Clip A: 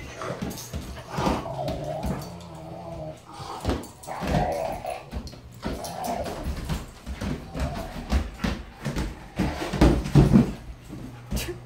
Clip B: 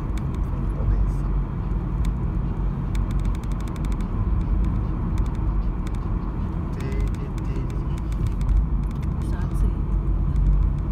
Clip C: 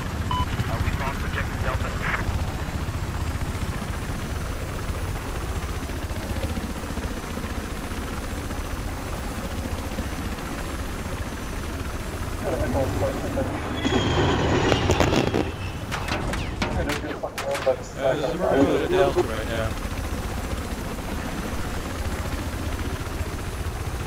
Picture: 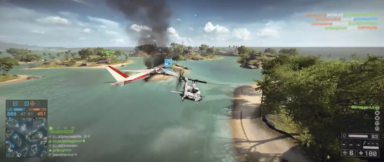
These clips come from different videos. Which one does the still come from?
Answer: C